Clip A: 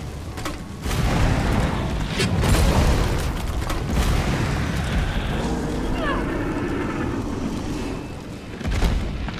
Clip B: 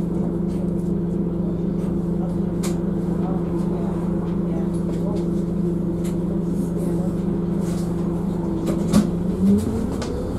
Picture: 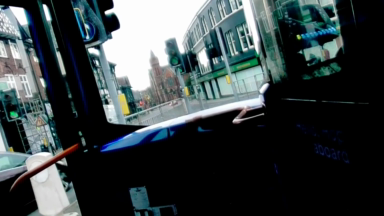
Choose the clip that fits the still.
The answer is B